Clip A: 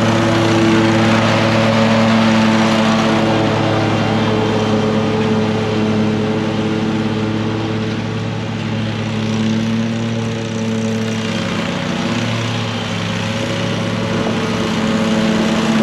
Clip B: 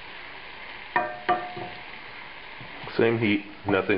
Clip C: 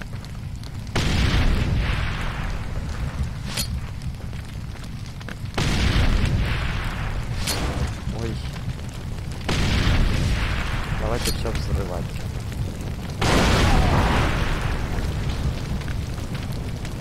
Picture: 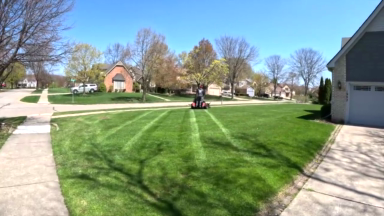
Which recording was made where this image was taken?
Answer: A